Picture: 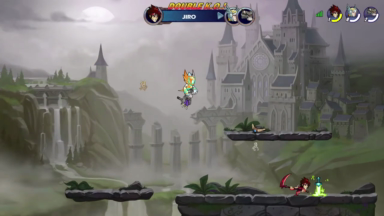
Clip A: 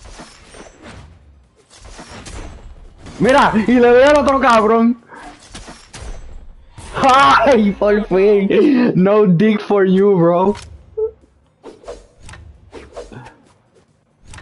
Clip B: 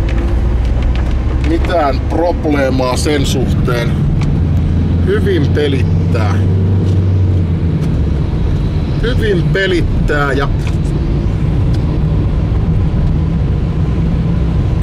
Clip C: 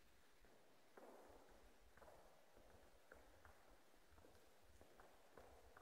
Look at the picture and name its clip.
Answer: A